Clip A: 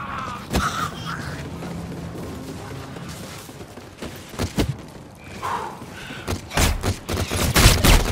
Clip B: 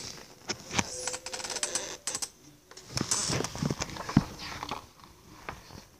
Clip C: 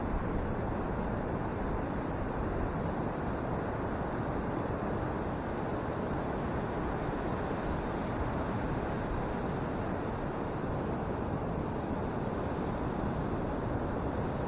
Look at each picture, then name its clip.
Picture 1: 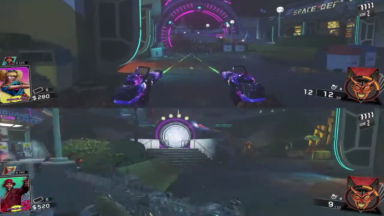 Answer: A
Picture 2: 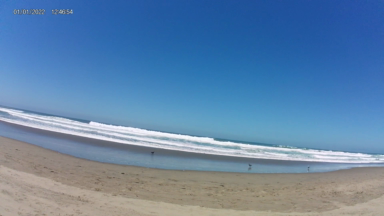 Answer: C